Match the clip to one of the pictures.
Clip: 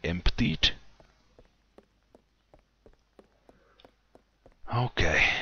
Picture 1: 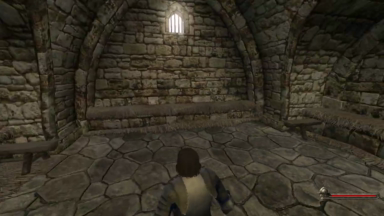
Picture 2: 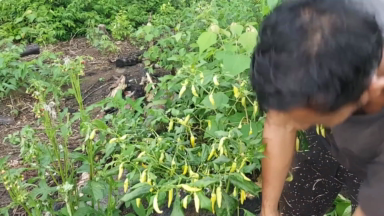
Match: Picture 1